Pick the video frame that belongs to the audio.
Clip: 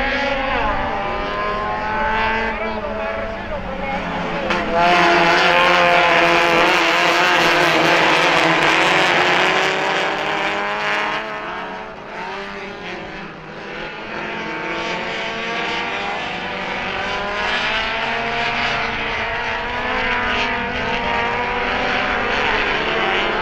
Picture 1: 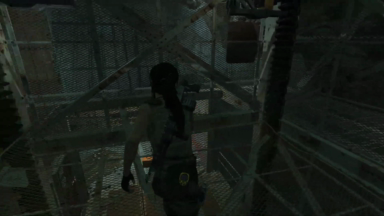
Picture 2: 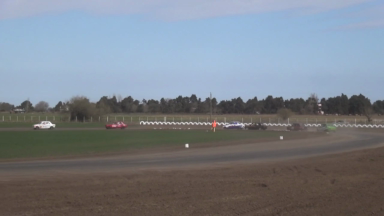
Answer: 2